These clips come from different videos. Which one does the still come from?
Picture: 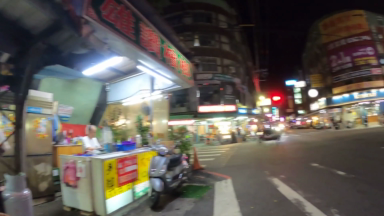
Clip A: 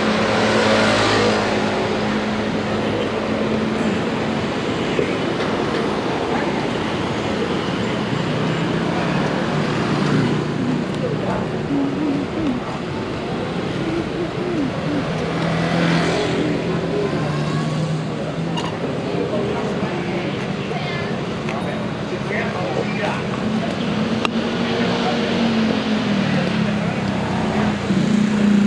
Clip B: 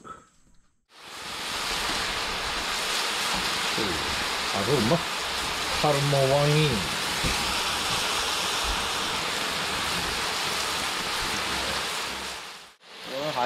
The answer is A